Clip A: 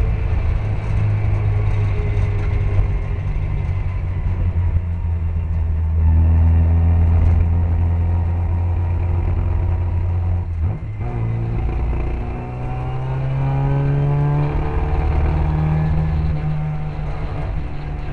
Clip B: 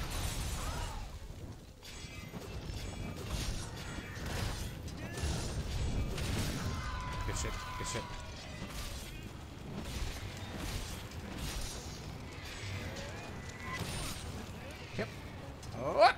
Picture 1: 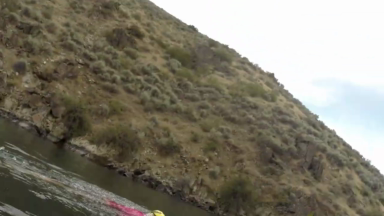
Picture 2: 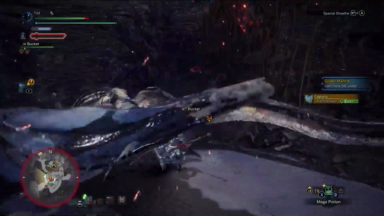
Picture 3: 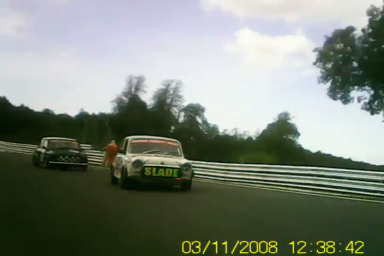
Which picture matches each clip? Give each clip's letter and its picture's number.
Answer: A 3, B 2